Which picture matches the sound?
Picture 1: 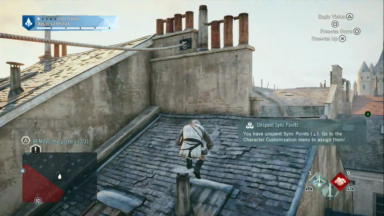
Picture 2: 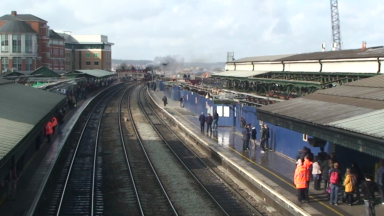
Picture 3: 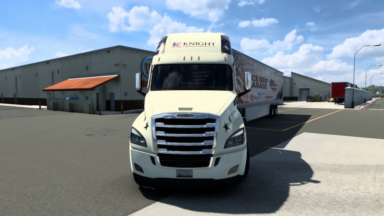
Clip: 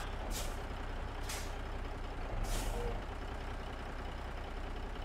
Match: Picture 3